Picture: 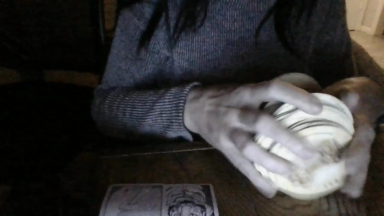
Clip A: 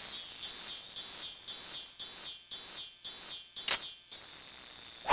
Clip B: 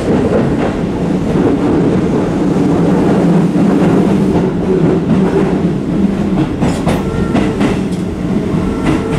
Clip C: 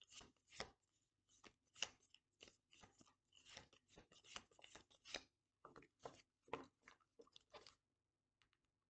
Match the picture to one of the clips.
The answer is C